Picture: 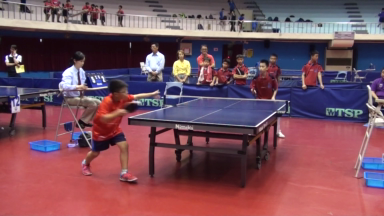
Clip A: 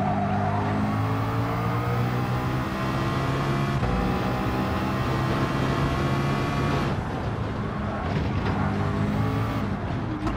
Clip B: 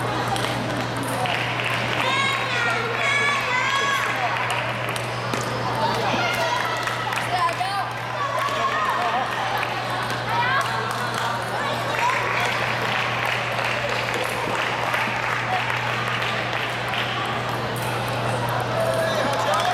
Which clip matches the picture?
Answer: B